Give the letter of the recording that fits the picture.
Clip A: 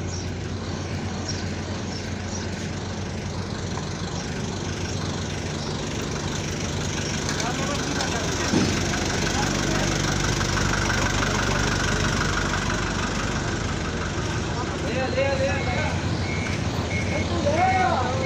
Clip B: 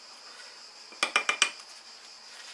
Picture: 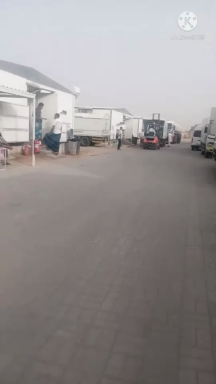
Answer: A